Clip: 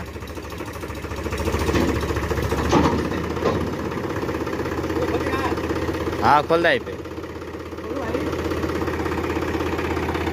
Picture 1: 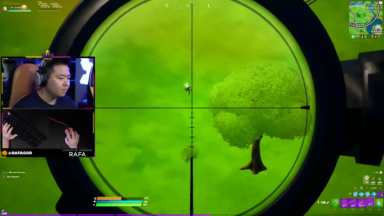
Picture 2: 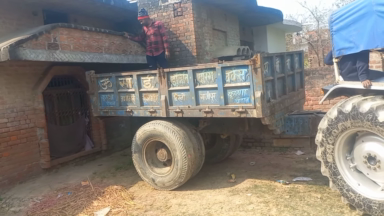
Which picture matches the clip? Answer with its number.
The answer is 2